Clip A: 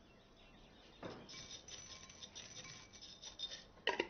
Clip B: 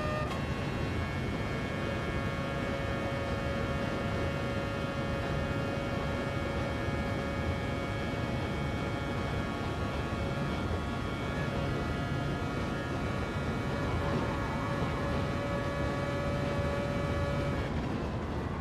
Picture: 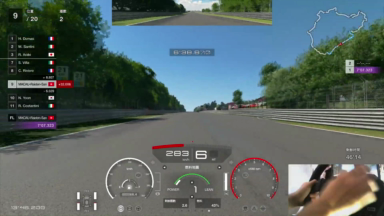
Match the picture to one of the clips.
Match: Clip B